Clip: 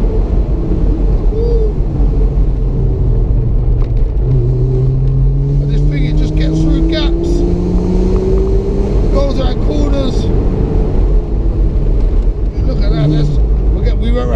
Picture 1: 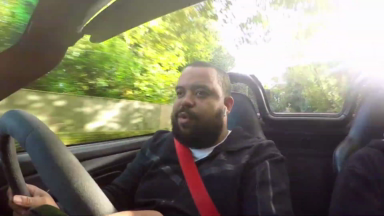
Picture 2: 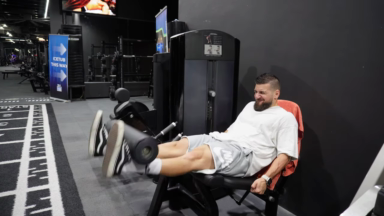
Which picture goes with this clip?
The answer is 1